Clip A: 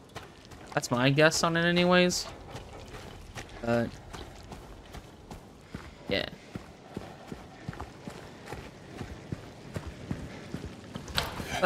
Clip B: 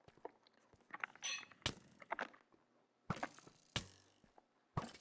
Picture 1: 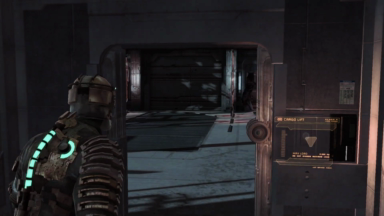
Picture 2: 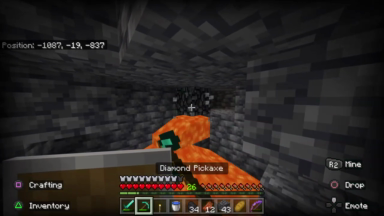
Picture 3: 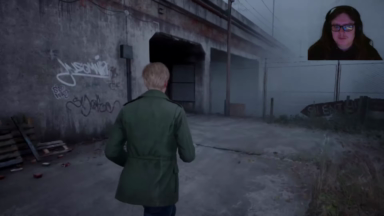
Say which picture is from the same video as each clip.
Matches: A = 3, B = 2